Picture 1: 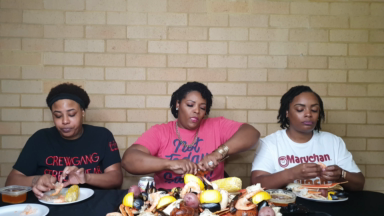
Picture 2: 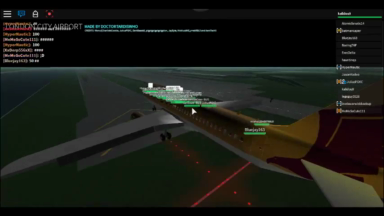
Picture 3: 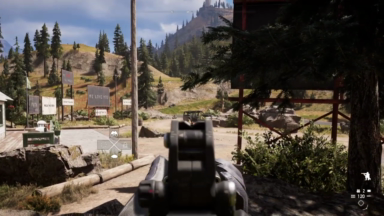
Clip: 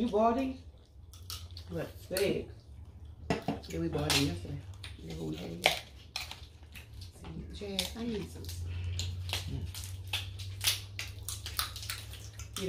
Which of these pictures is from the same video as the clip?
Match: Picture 1